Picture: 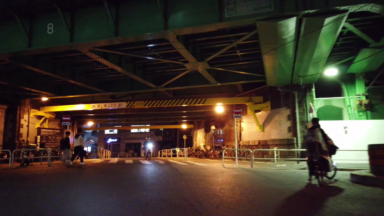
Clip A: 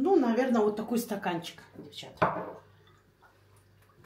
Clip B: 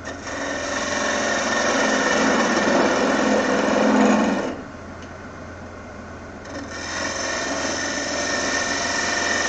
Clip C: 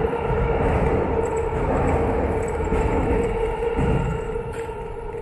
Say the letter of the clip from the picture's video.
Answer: C